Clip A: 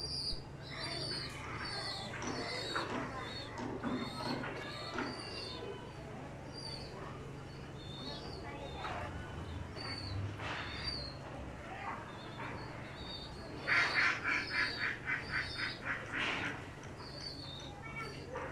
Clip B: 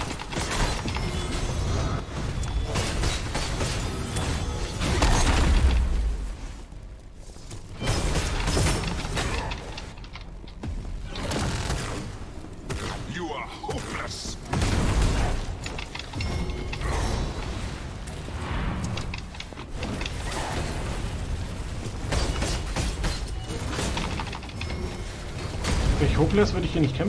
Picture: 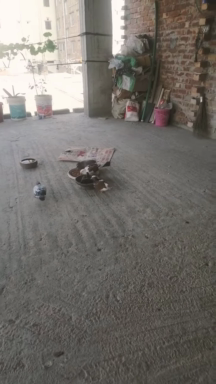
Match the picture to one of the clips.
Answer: A